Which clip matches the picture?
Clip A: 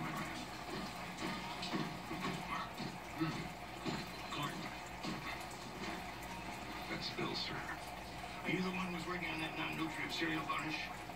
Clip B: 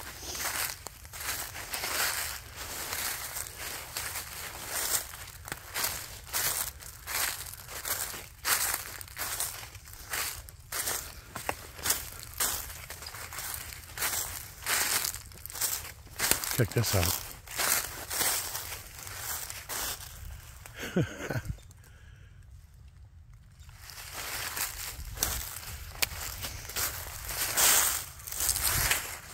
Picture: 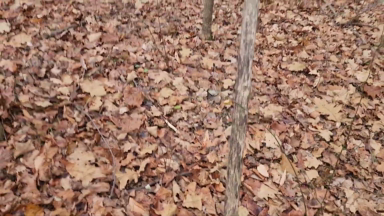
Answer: B